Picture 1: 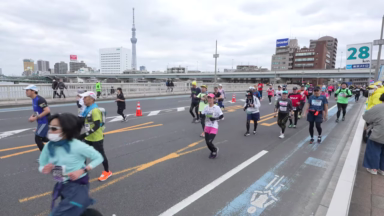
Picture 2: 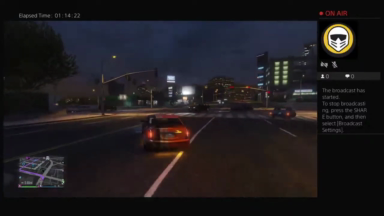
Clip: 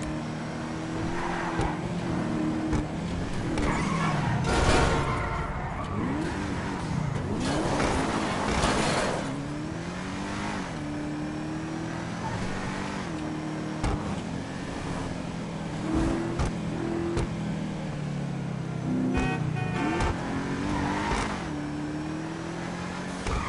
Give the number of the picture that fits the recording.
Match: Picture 2